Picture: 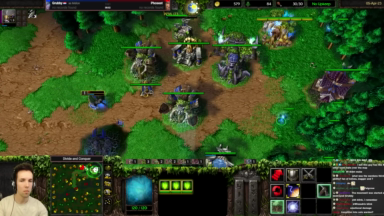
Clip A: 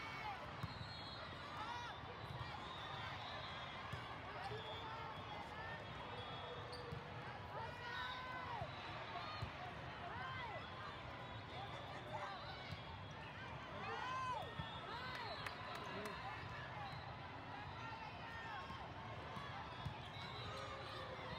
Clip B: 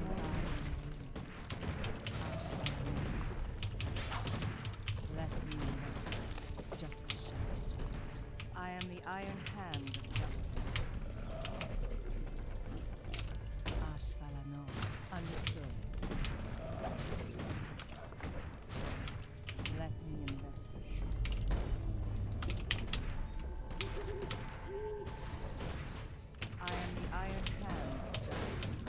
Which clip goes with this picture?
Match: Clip B